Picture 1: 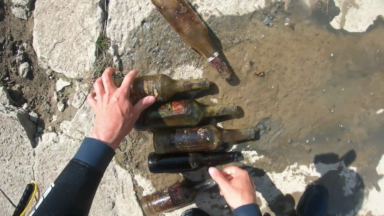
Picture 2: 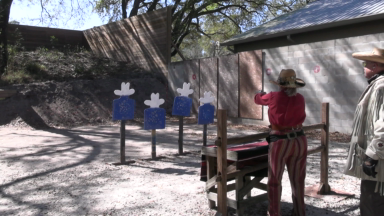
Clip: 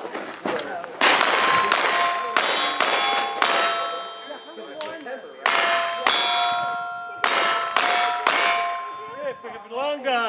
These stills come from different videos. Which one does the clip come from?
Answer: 2